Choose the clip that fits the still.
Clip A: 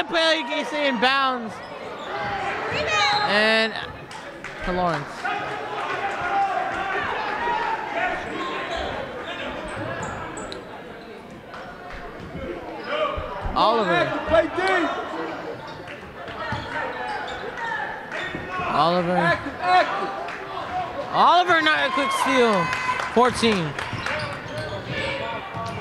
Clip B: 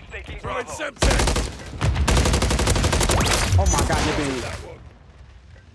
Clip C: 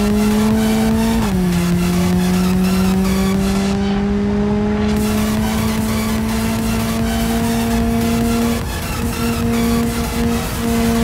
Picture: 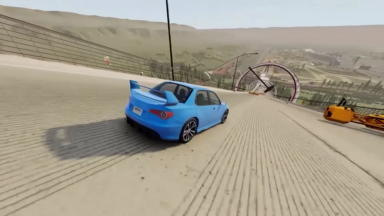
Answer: C